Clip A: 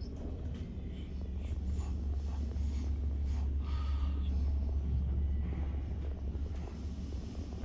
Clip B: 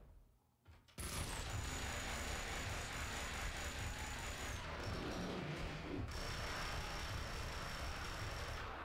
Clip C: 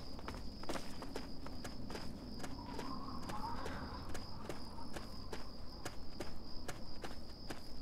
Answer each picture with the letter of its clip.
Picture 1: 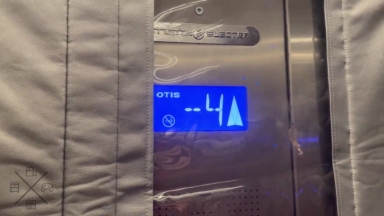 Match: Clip A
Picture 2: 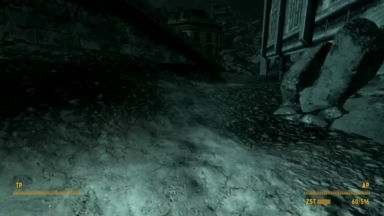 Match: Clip C